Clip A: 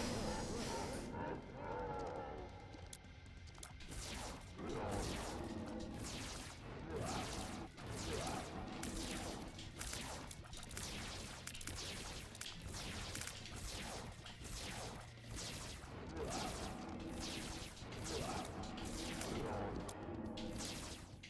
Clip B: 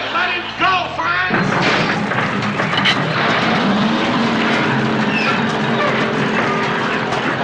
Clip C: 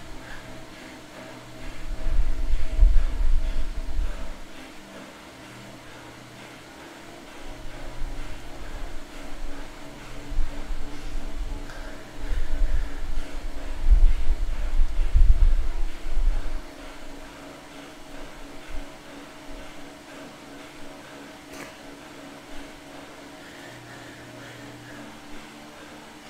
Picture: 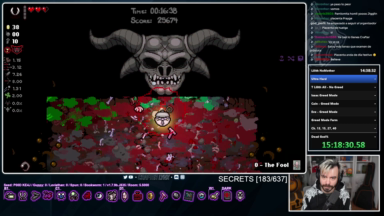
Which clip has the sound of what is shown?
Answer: A